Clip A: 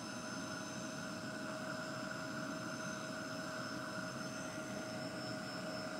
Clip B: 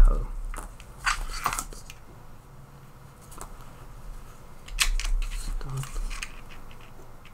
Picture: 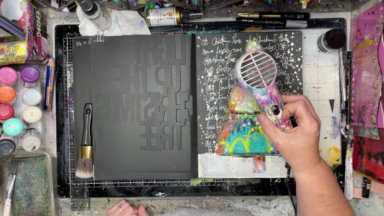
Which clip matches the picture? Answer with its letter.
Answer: A